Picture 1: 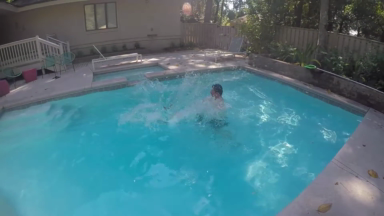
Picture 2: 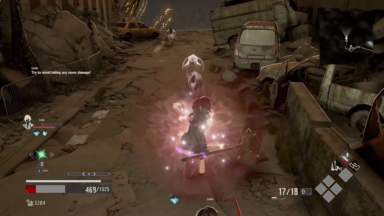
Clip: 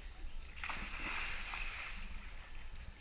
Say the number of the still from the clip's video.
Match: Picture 1